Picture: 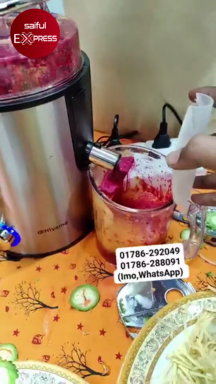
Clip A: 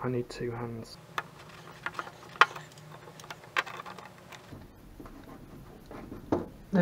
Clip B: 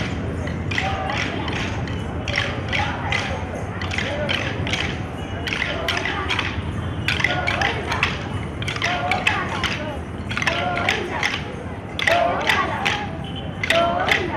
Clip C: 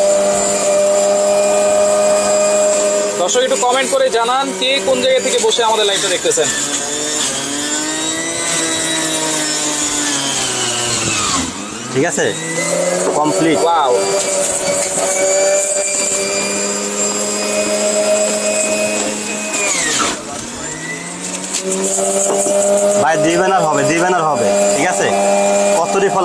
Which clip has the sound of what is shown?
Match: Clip C